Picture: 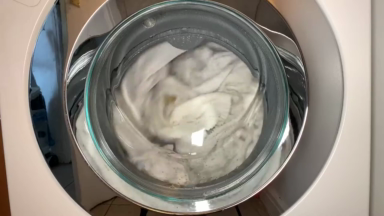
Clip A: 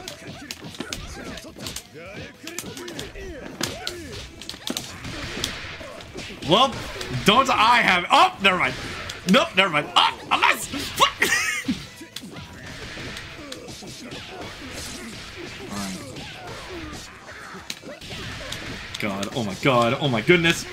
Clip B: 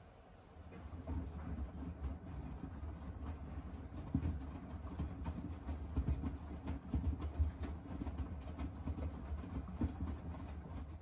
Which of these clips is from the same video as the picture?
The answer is B